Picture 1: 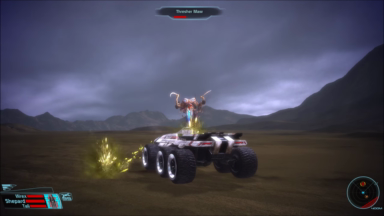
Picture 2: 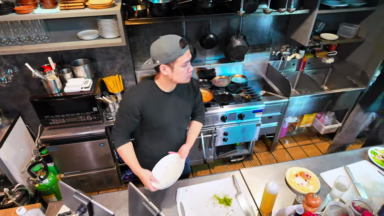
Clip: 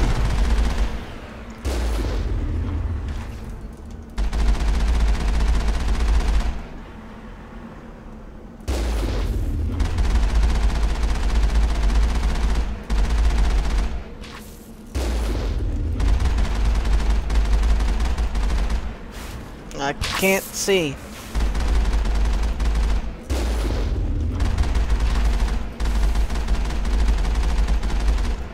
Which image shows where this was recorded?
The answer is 1